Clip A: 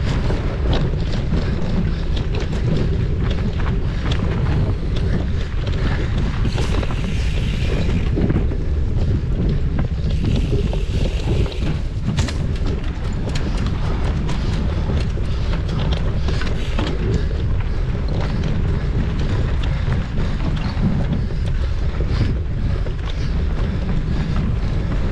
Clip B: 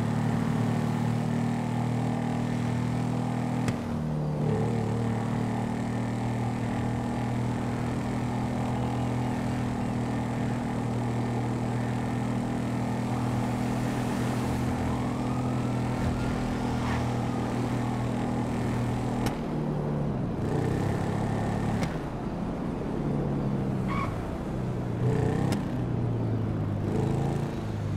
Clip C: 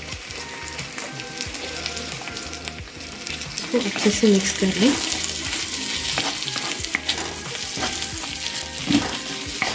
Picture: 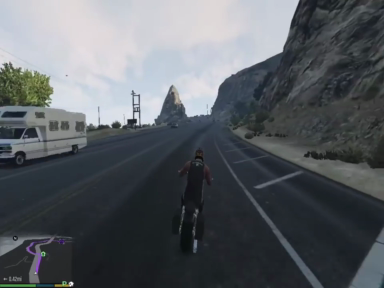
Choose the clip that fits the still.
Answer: B